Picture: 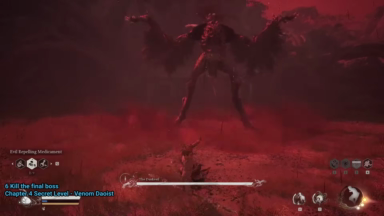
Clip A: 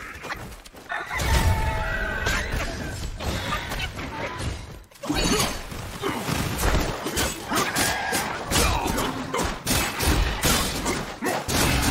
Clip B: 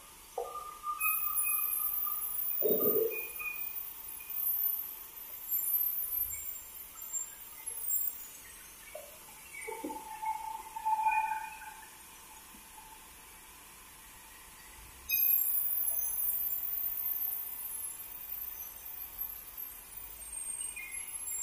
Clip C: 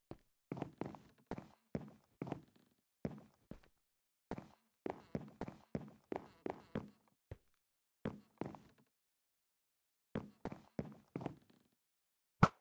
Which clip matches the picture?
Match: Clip A